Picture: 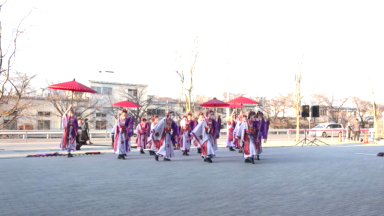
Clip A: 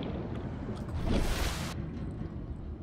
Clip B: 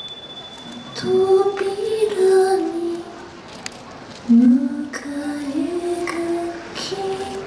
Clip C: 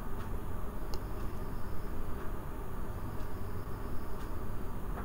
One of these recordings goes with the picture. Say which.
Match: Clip B